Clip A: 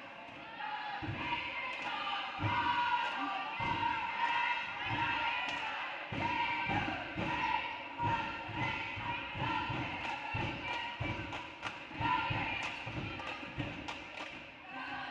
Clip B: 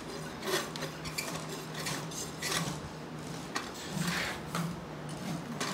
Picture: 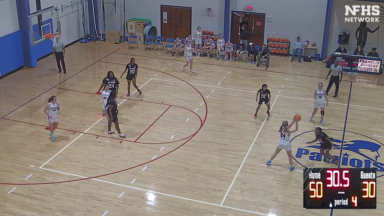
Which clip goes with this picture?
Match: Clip A